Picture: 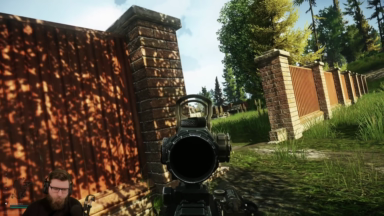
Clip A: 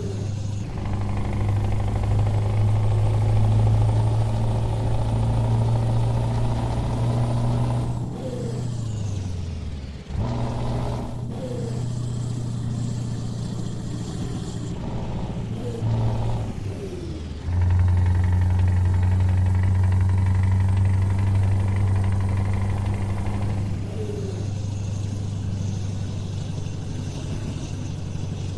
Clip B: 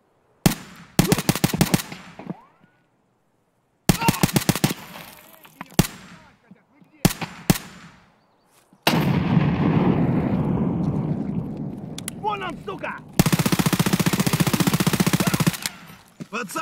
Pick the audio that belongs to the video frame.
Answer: B